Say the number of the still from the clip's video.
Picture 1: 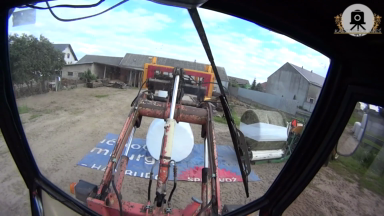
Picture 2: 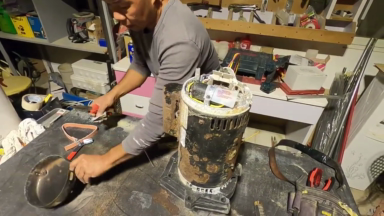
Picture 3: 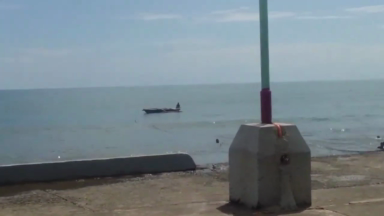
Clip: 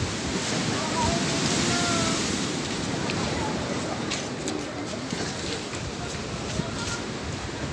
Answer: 3